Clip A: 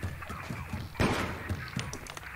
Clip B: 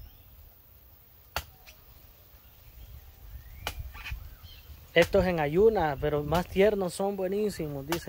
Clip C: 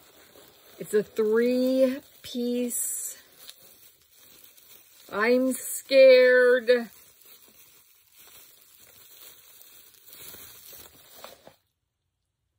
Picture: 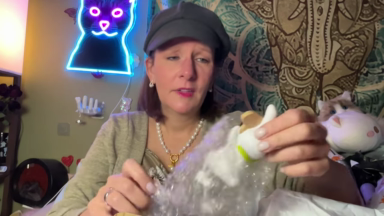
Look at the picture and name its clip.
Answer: C